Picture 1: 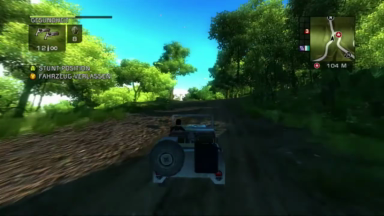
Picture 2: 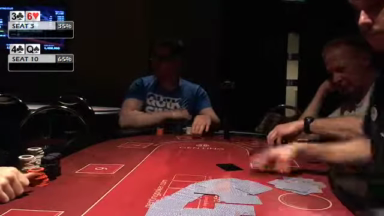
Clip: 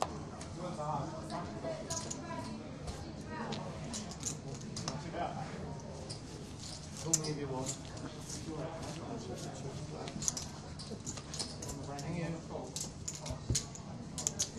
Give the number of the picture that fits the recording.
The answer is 2